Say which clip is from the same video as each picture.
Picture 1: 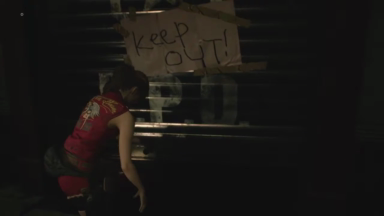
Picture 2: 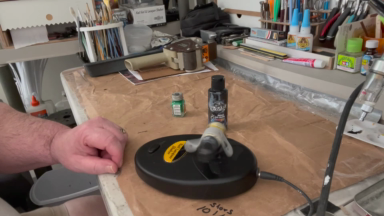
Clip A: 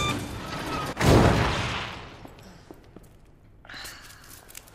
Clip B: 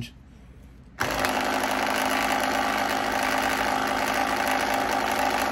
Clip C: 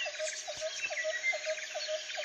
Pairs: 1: A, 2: B